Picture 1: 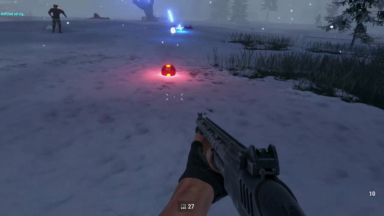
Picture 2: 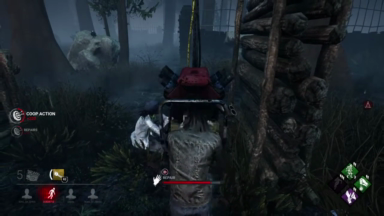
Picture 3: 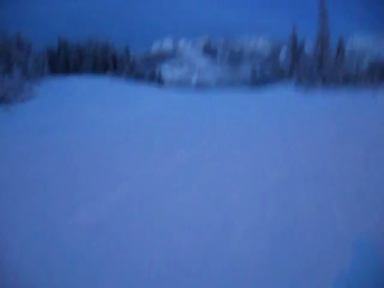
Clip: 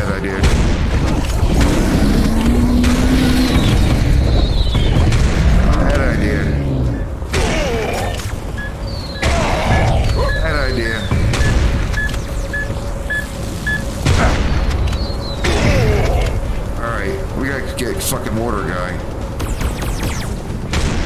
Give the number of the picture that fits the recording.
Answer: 1